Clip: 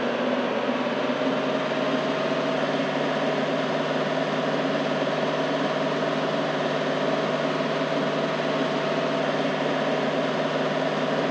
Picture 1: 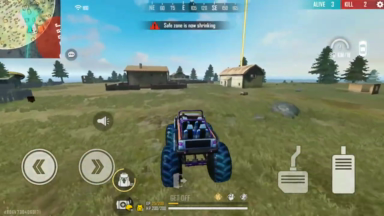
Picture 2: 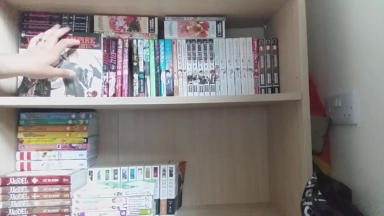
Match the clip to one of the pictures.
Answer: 1